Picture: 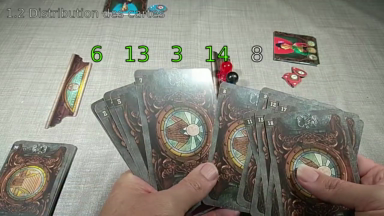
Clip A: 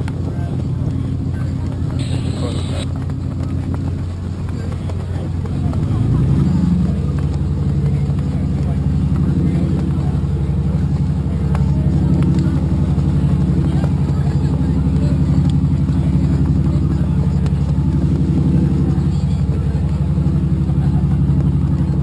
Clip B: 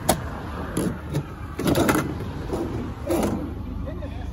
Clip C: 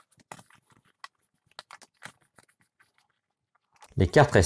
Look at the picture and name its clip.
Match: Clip C